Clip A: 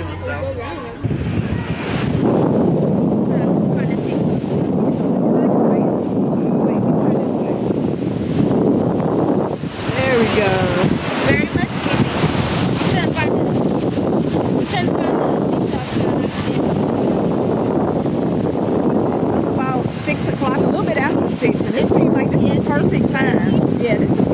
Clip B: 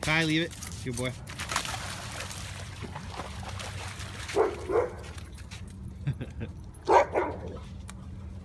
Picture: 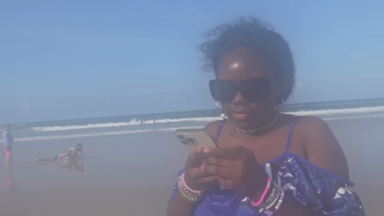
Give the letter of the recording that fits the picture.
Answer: A